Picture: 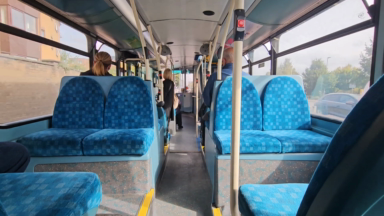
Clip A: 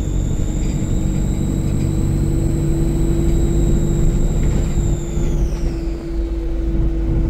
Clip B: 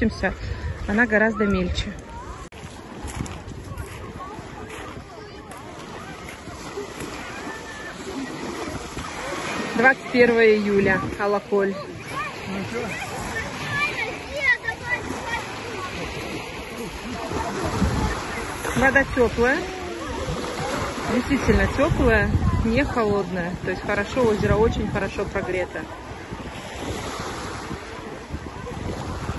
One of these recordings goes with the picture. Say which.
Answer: A